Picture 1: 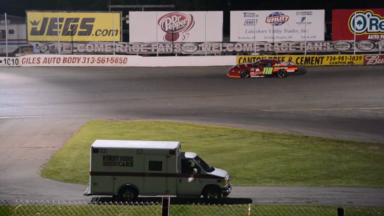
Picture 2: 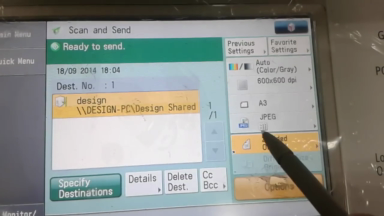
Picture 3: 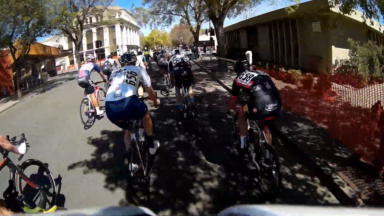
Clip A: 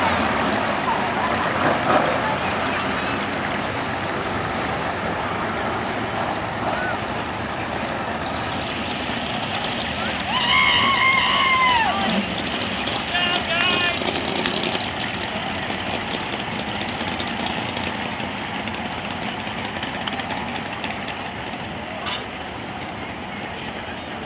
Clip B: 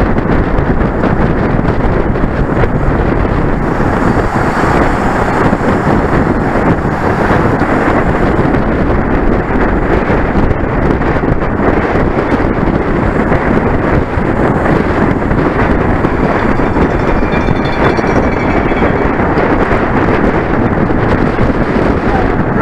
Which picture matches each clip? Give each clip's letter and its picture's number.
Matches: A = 1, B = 3